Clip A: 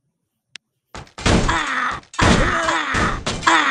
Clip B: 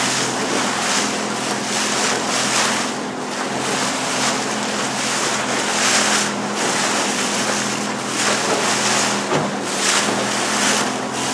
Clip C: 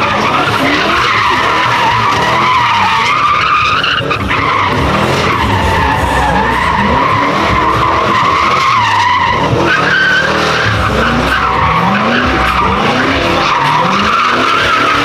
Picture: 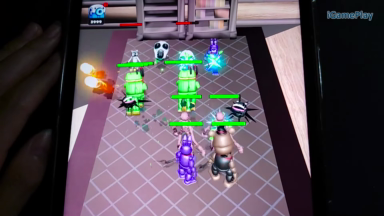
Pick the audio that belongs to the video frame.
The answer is A